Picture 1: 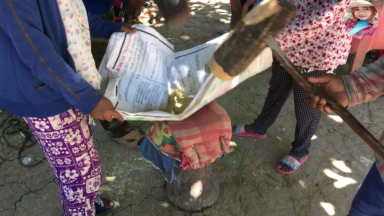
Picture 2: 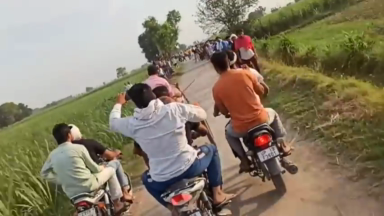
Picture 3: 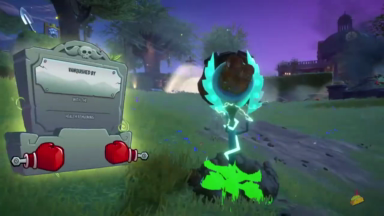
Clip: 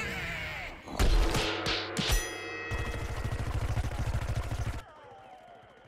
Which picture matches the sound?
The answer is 3